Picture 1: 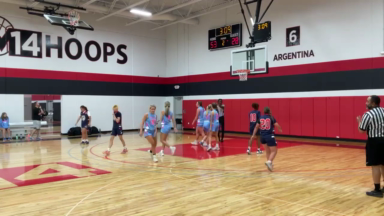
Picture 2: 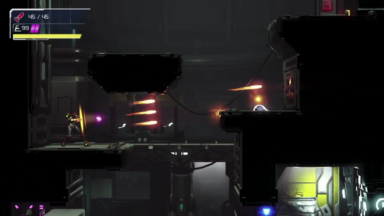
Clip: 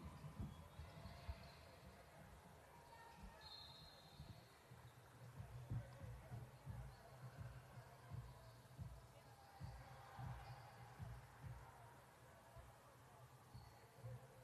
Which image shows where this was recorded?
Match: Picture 1